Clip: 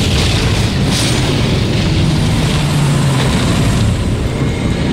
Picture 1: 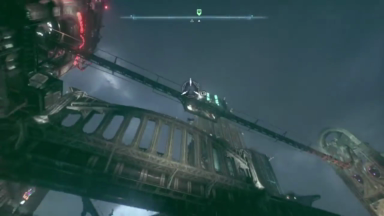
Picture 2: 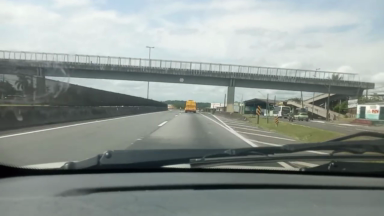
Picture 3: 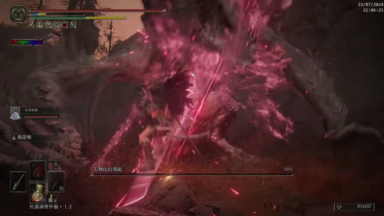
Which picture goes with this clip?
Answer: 3